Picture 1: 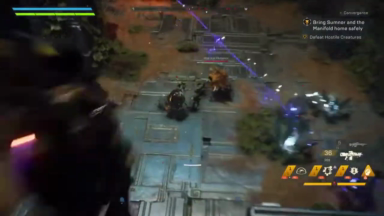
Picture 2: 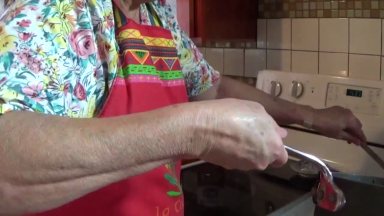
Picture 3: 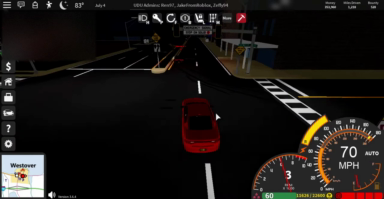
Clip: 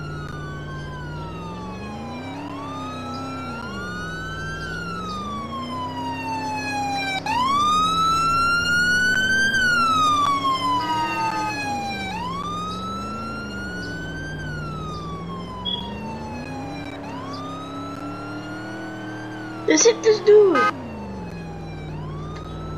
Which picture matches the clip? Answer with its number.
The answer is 3